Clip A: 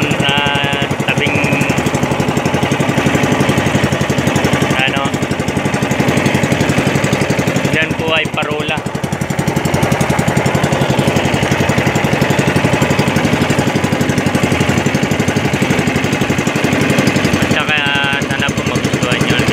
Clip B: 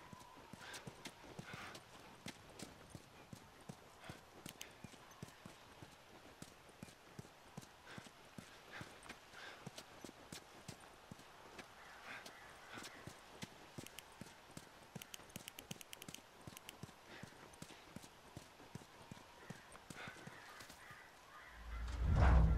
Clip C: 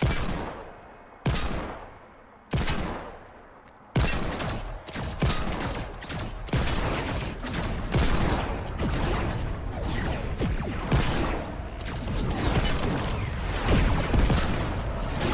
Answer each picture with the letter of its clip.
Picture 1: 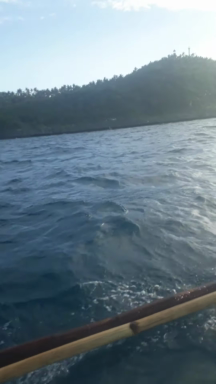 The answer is A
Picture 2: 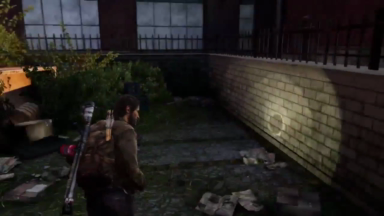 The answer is B